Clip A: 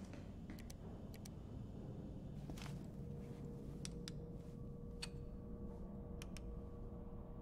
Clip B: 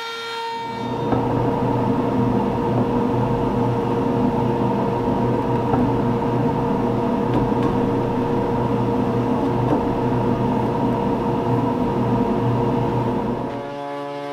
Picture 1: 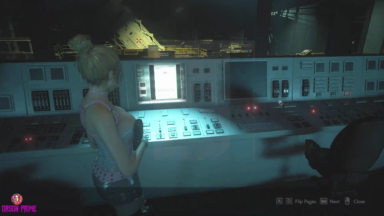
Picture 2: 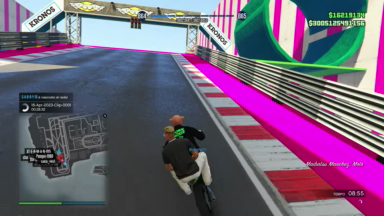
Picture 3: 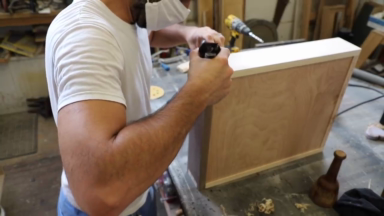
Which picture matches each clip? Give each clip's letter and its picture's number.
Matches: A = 1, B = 3